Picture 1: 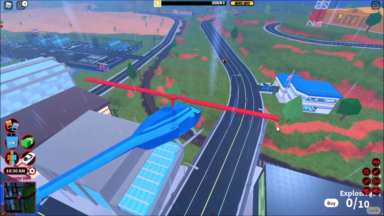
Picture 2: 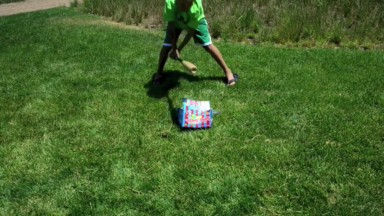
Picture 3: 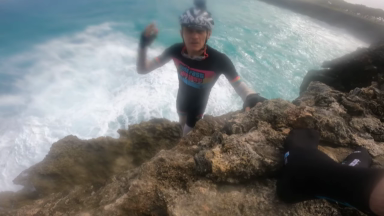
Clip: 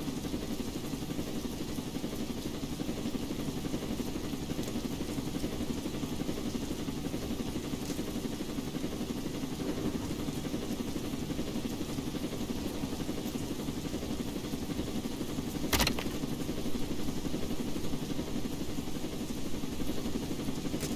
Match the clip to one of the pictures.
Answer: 1